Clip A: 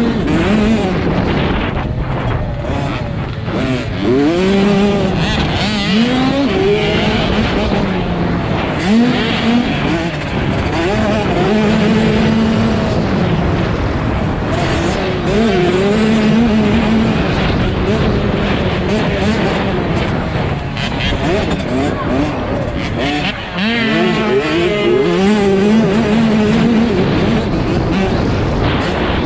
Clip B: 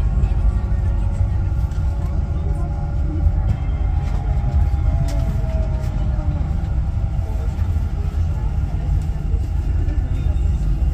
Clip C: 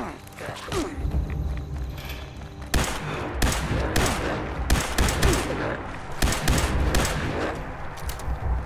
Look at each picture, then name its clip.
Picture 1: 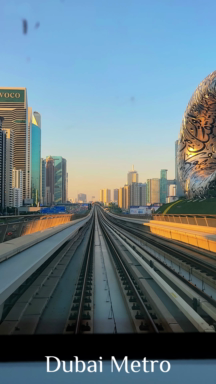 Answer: B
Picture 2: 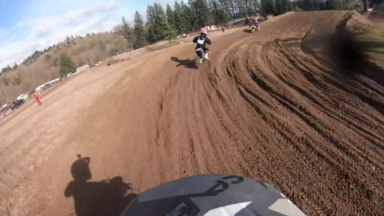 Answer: A